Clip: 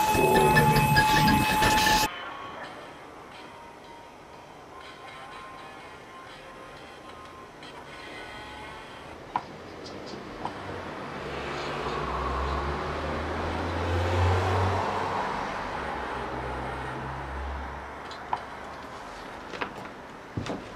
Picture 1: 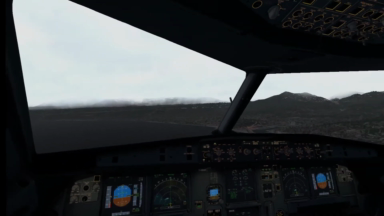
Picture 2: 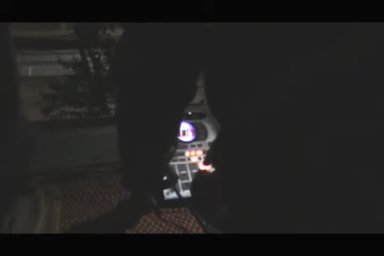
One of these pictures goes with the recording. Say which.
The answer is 2